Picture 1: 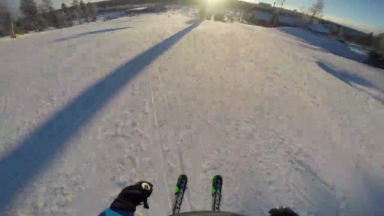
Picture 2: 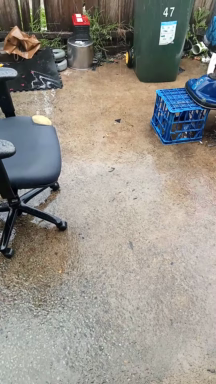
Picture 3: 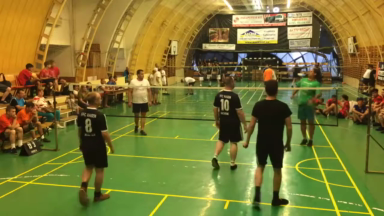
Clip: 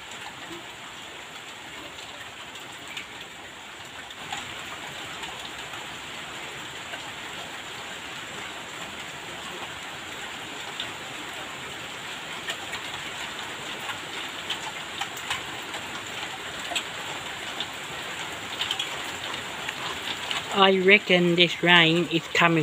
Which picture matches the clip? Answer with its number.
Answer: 2